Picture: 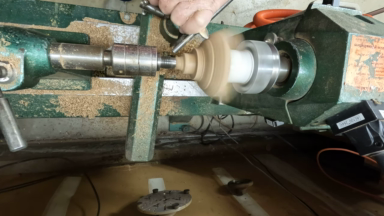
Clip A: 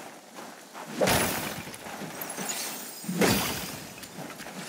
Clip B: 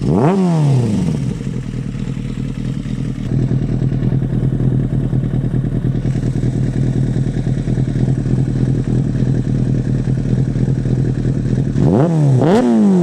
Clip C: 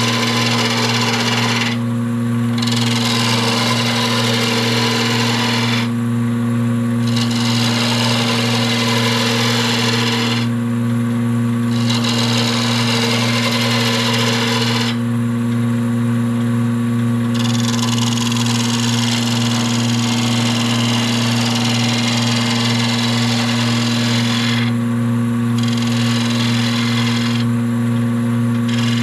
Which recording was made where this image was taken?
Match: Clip C